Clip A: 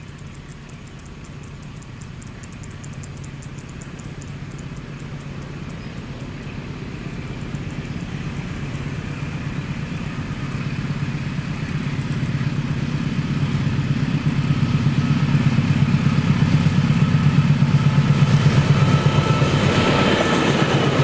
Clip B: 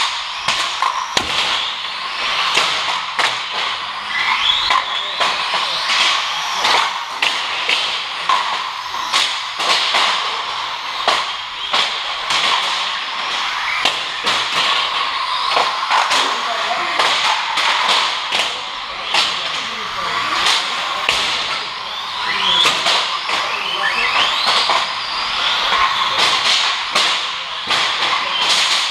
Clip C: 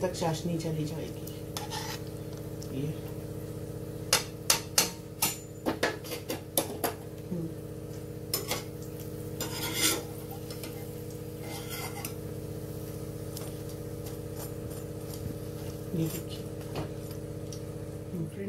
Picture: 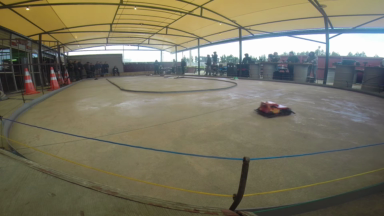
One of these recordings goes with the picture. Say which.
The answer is B